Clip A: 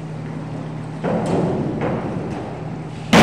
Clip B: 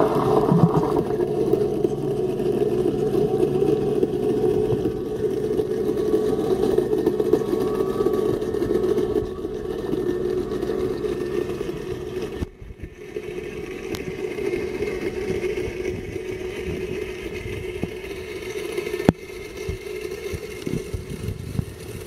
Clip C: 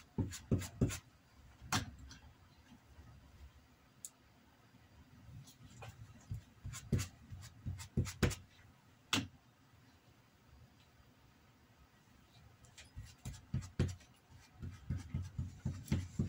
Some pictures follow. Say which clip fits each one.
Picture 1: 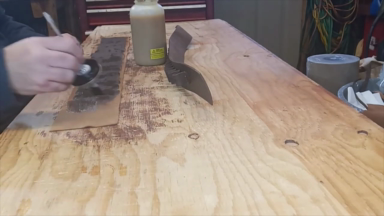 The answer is C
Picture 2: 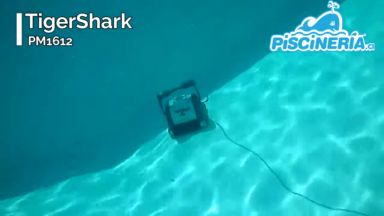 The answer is B